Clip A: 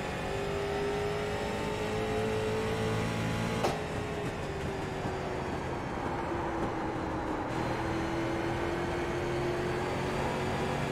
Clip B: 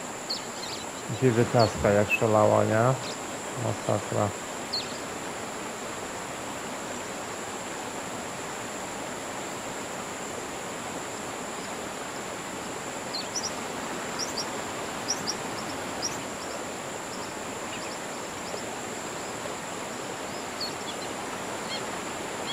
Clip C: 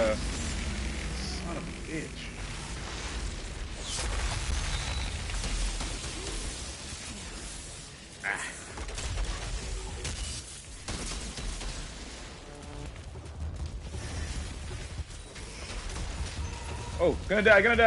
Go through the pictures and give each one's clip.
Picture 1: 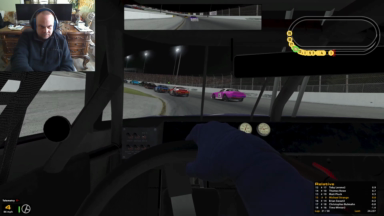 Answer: A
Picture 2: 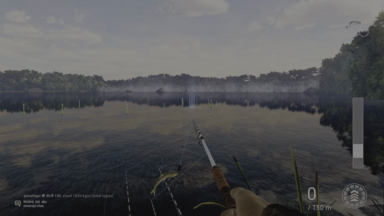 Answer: B